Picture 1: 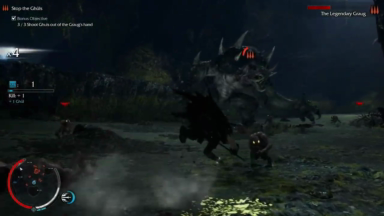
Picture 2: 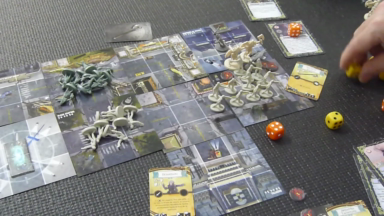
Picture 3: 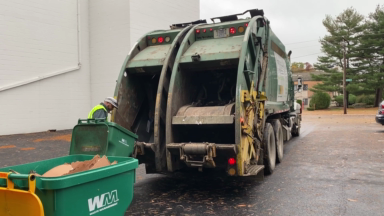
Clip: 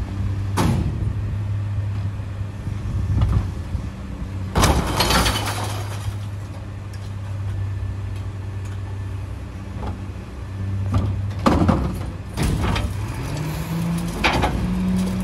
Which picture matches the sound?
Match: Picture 3